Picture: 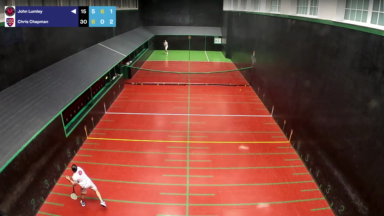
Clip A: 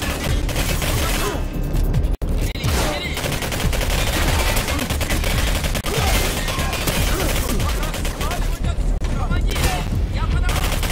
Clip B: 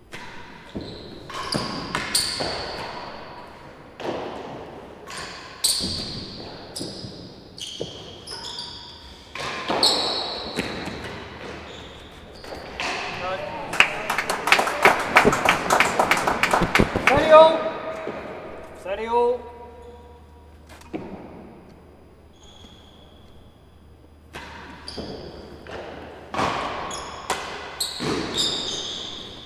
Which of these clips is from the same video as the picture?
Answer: B